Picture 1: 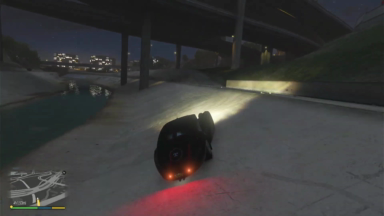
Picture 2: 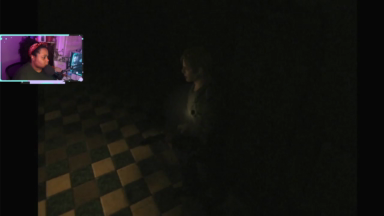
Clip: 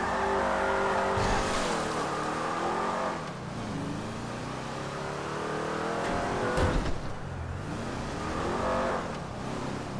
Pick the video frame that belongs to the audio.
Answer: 1